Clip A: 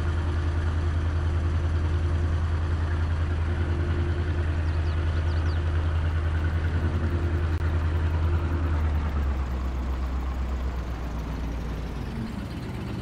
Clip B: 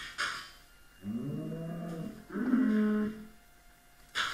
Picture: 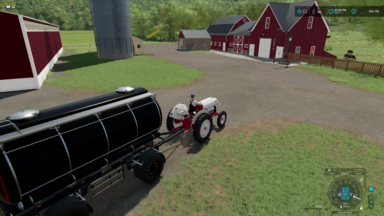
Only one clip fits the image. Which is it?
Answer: A